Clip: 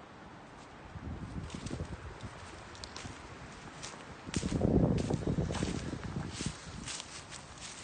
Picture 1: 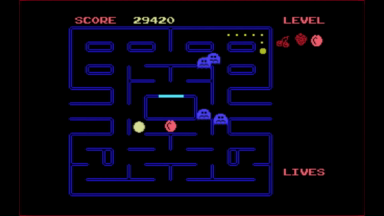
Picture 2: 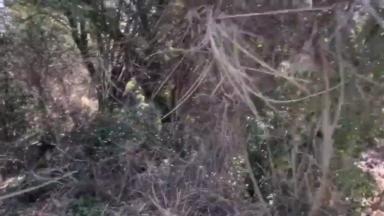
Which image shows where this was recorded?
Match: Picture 2